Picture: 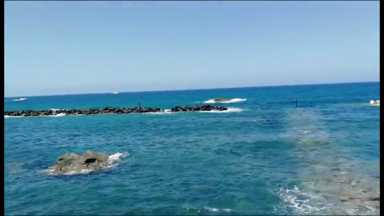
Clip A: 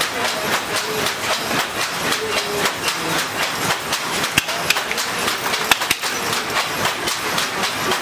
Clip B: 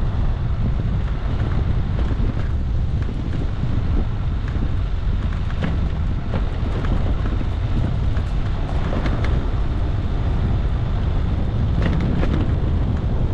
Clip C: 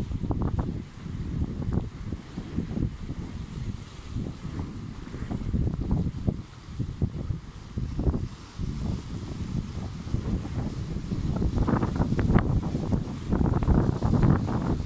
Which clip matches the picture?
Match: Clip C